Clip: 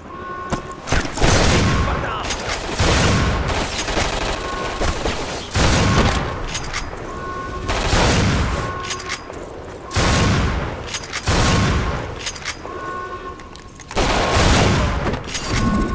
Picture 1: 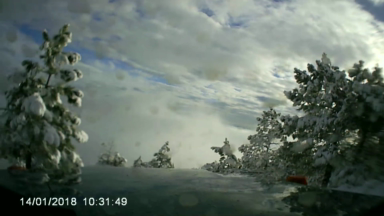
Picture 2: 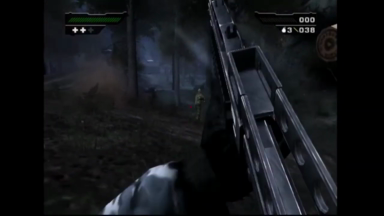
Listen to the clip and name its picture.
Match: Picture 2